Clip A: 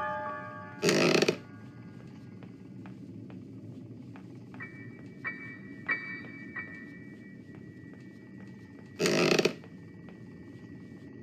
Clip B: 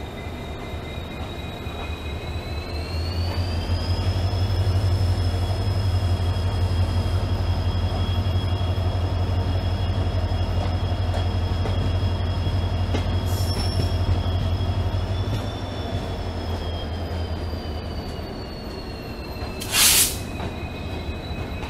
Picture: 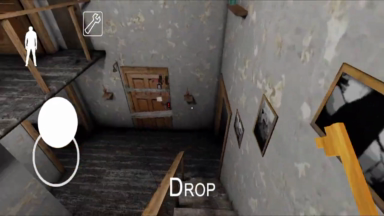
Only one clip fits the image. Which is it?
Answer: A